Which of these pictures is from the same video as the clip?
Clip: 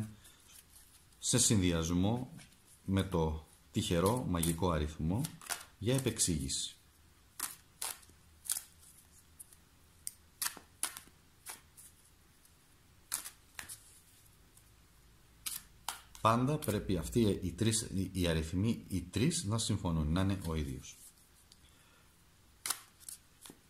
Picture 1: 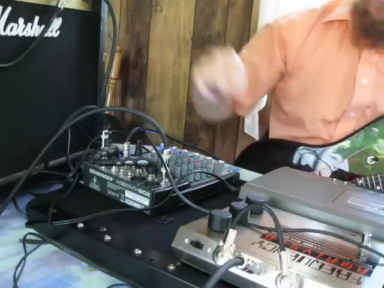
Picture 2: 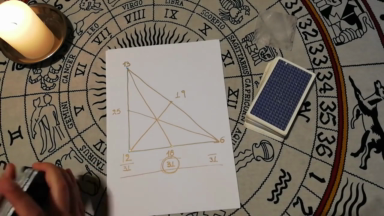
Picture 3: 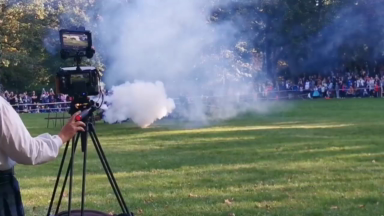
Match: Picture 2